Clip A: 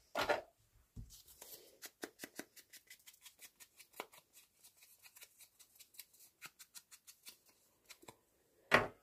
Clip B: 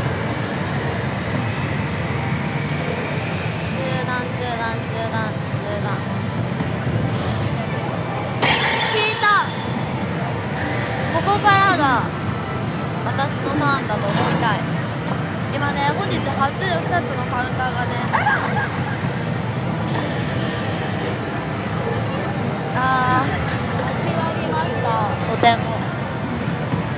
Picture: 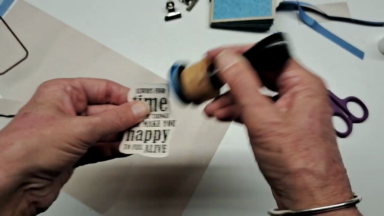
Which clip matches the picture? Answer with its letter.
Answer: A